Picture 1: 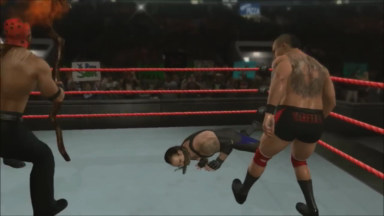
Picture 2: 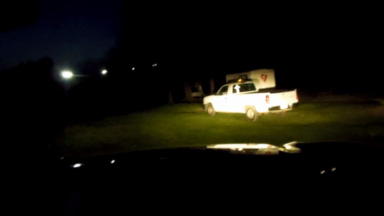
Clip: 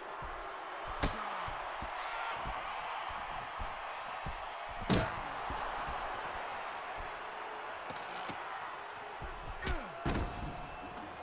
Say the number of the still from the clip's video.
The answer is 1